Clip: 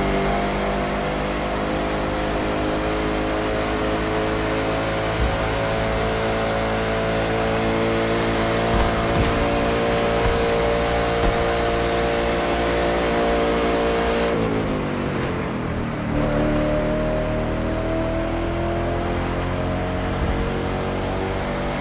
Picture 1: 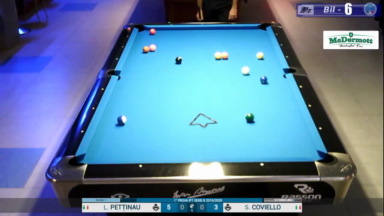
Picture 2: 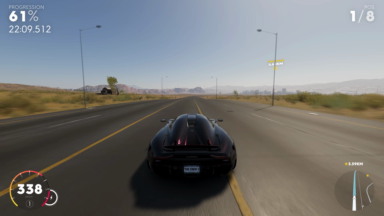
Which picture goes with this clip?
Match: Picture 2